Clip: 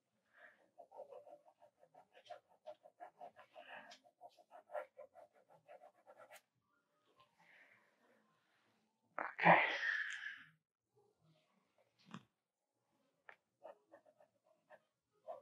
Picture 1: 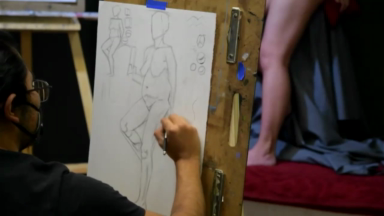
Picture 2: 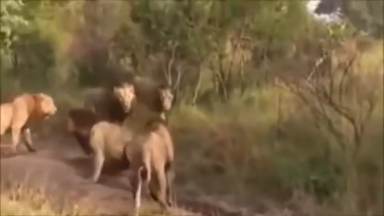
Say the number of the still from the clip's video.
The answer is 1